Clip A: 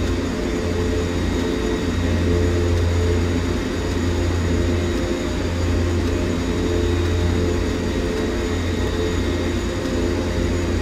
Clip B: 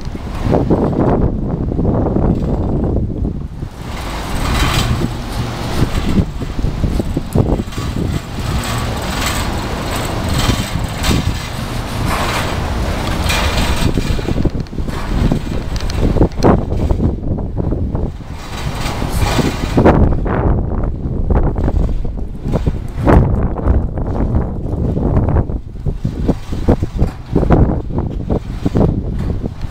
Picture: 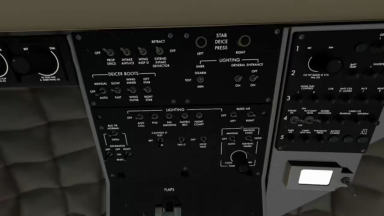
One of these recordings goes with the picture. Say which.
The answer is A